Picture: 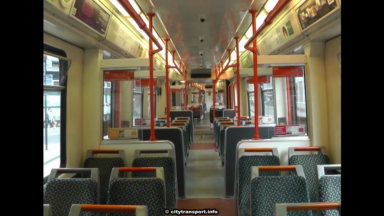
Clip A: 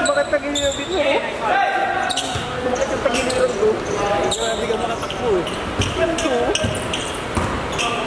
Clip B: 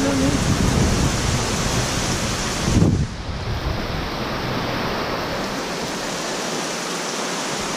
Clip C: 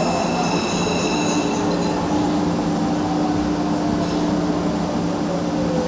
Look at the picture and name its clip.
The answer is C